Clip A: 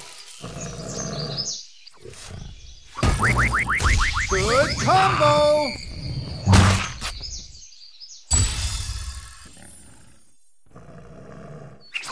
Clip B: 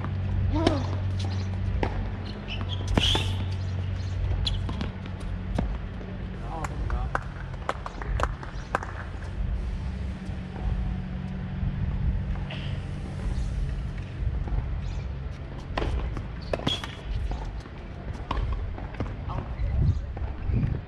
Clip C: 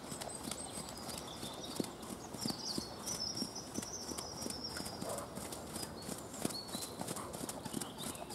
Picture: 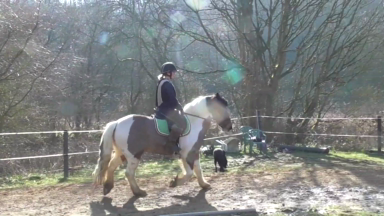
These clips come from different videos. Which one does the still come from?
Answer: C